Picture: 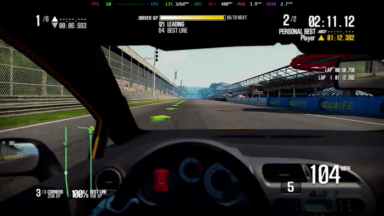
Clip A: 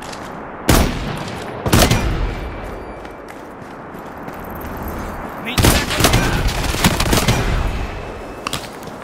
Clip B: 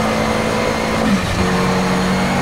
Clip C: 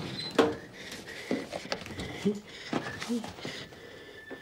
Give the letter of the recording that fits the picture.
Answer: B